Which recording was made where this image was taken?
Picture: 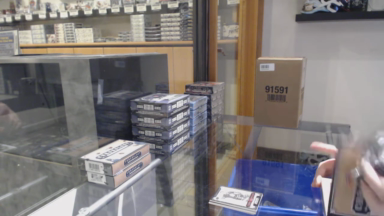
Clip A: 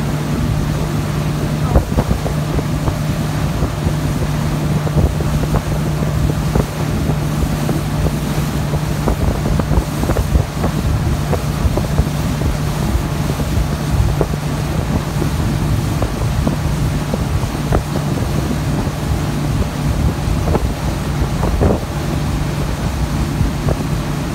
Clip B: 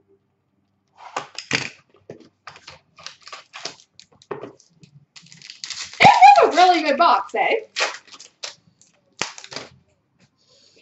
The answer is B